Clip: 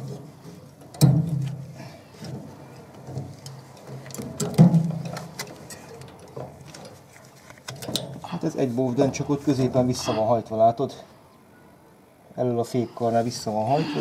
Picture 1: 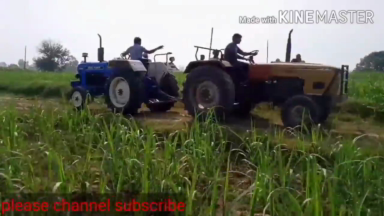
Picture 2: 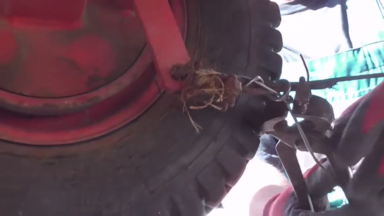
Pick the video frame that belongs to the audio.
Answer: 2